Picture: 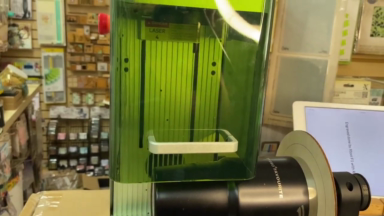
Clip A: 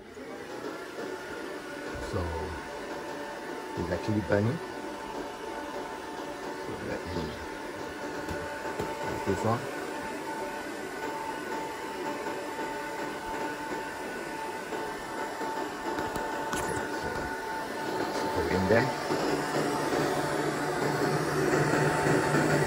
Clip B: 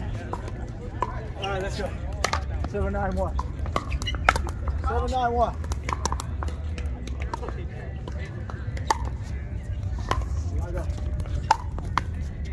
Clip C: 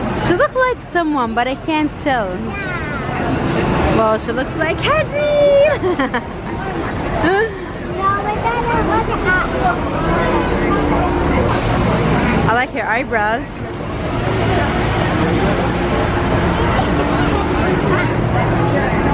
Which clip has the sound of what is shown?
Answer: A